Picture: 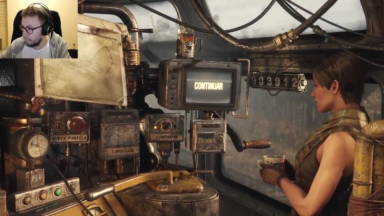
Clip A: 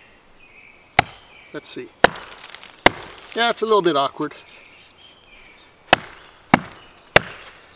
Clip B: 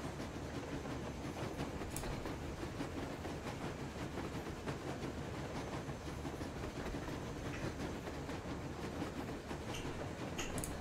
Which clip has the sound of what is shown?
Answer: B